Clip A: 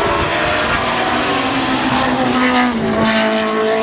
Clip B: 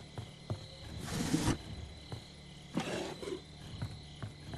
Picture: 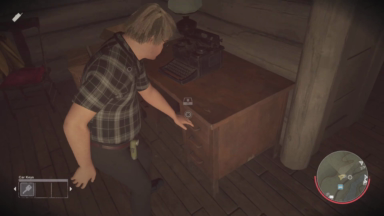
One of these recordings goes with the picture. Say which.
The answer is B